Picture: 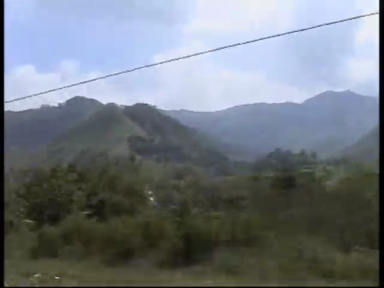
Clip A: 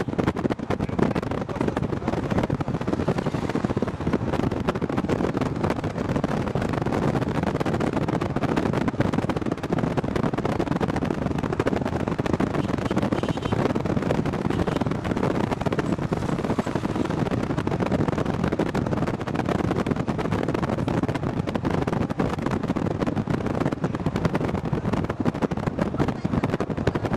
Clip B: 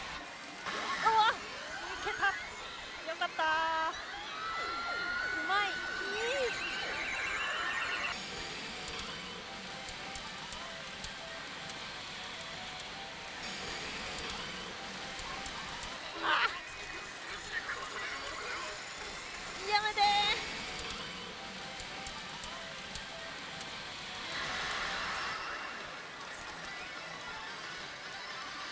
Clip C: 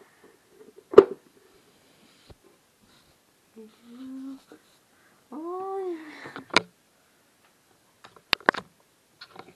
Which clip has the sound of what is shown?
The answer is A